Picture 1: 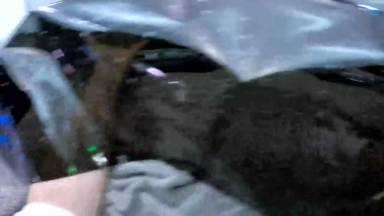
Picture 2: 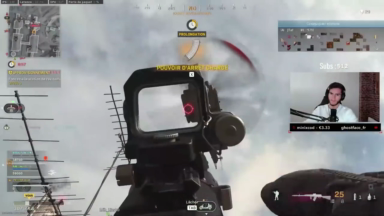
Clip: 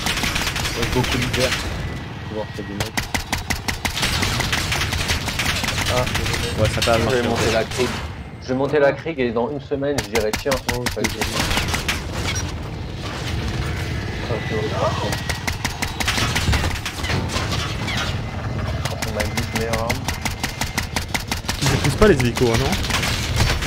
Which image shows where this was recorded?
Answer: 2